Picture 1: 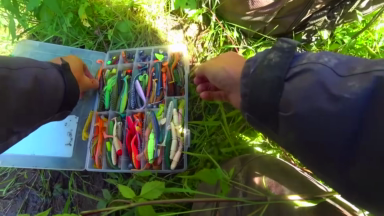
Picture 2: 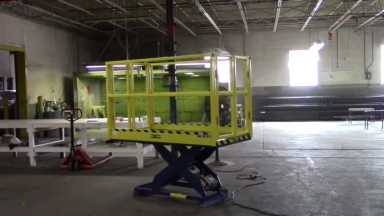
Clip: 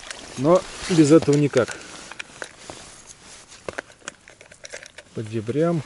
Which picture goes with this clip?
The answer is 1